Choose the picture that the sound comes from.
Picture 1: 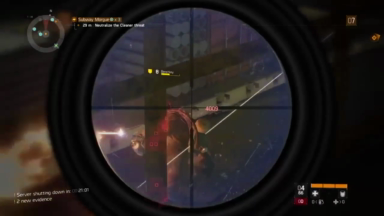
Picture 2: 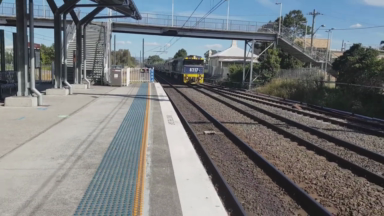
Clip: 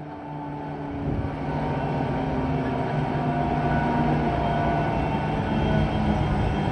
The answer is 2